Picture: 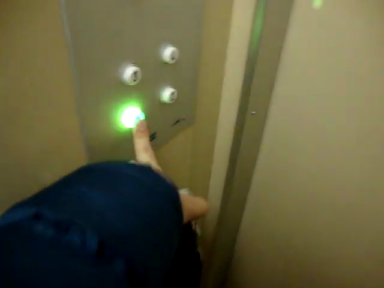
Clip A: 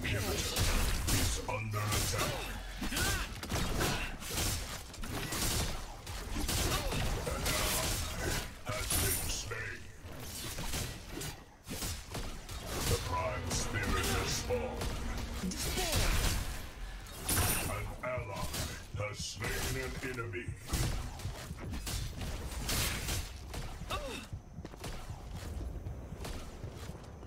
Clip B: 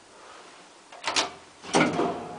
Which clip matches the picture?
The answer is B